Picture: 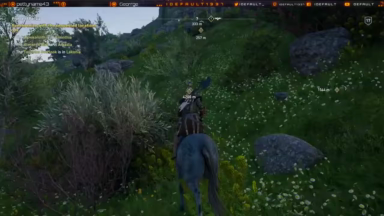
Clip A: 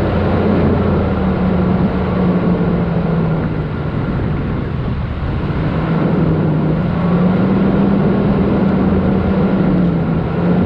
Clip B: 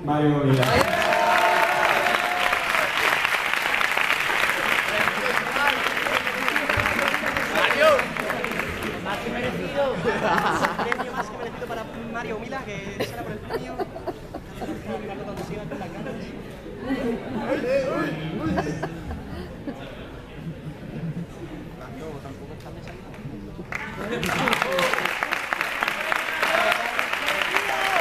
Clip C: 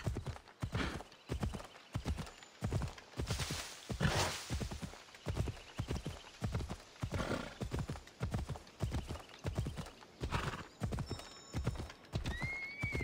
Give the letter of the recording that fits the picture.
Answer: C